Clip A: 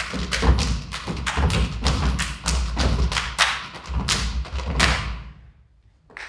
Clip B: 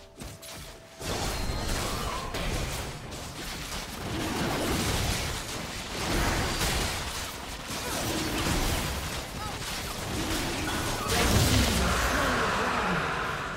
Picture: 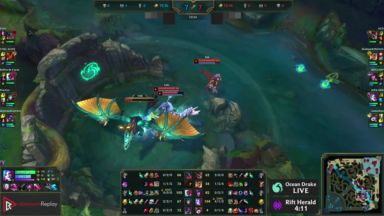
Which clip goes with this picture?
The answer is B